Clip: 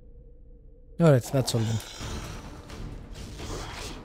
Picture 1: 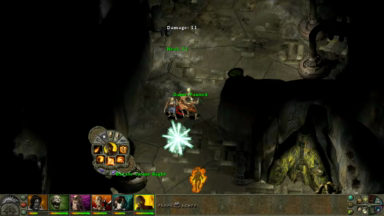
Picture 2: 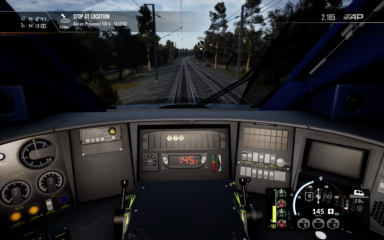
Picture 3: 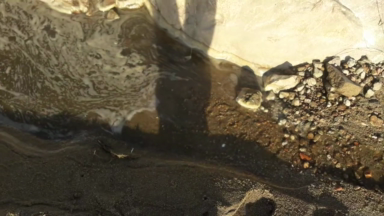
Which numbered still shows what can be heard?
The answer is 1